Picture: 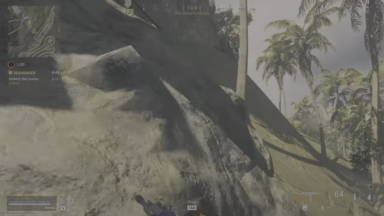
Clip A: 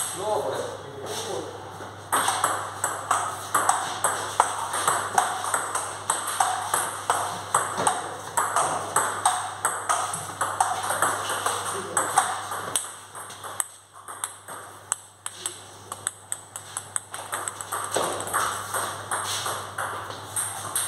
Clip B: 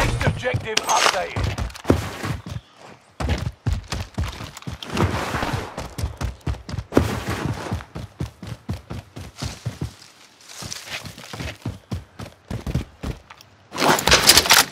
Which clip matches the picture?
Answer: B